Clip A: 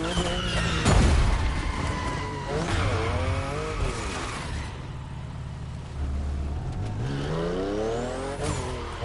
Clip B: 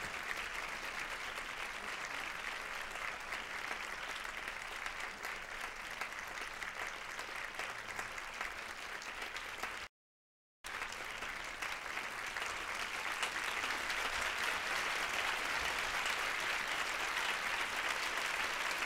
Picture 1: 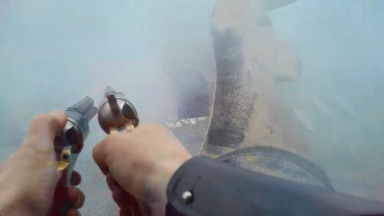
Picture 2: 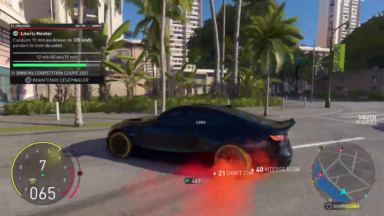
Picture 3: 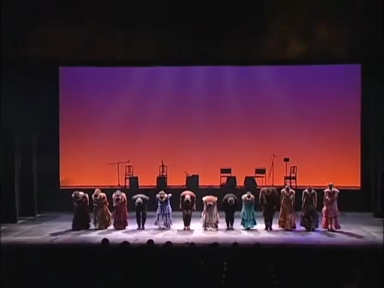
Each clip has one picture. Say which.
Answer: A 2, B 3